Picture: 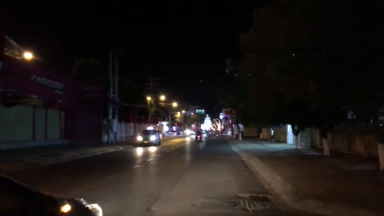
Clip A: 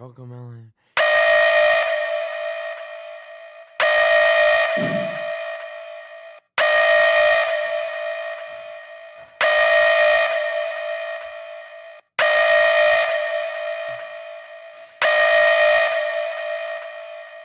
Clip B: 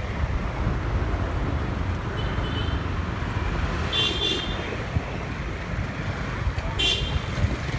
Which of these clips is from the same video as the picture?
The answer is B